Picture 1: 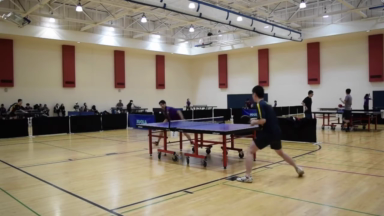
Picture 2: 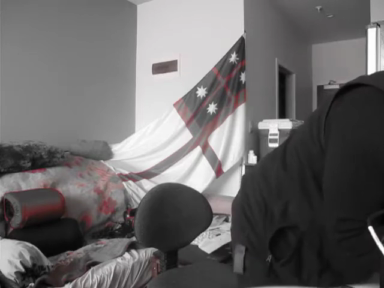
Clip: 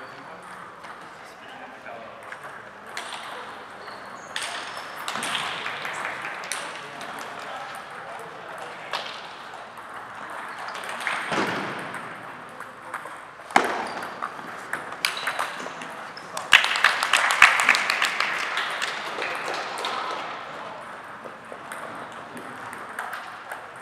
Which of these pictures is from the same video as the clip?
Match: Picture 1